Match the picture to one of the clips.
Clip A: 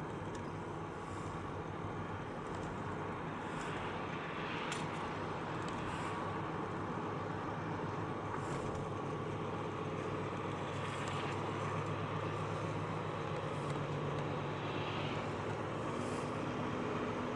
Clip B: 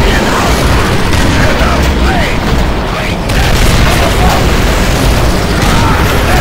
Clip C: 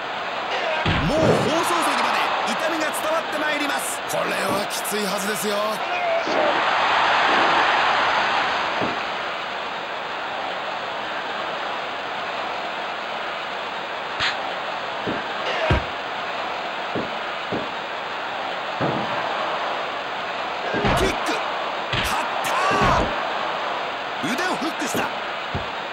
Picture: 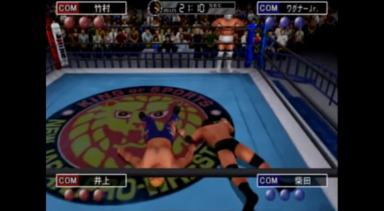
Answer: C